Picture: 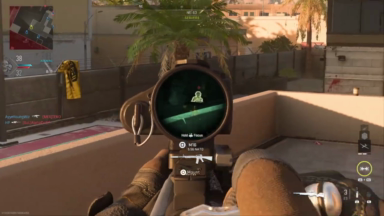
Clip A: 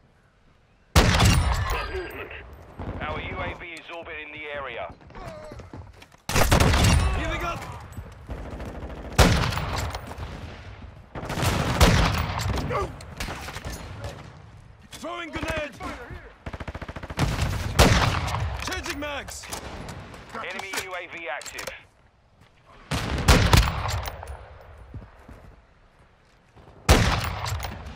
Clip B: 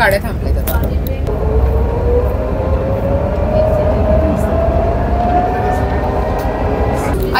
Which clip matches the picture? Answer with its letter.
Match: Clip A